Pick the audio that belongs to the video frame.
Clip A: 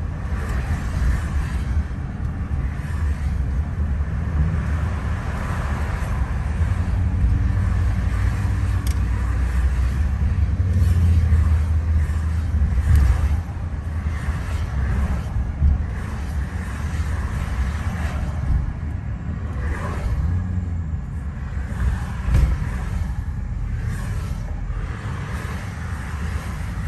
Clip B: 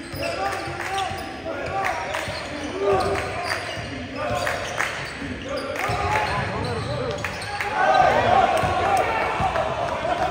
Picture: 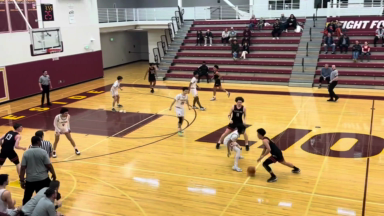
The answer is B